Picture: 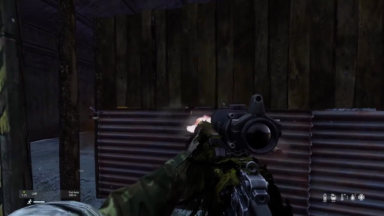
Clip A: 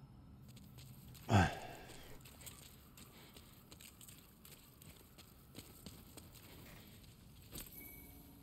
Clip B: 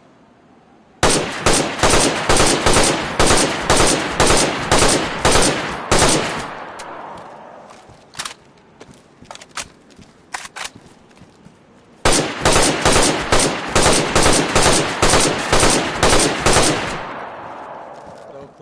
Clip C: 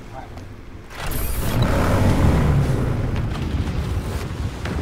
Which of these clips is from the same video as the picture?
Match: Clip B